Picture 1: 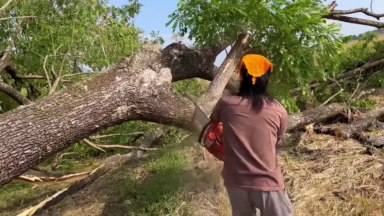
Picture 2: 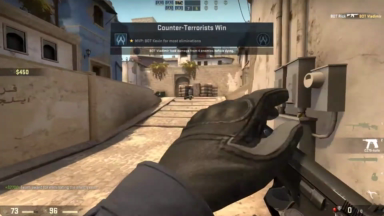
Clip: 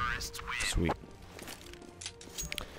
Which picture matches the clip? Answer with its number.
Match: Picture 2